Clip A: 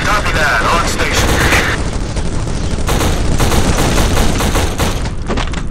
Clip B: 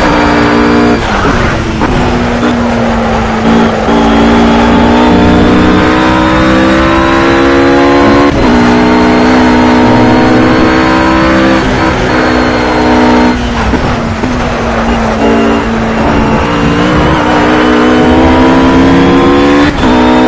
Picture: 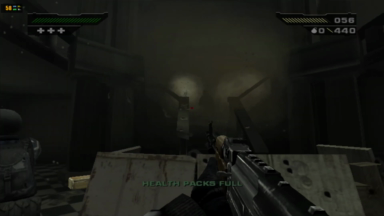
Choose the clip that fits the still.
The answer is A